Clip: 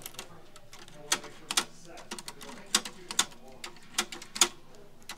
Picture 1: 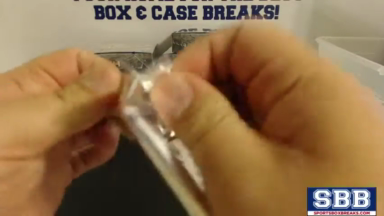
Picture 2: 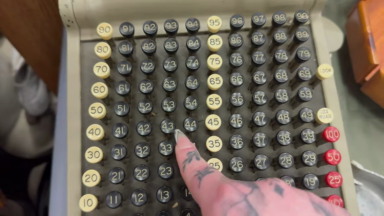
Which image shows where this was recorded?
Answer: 2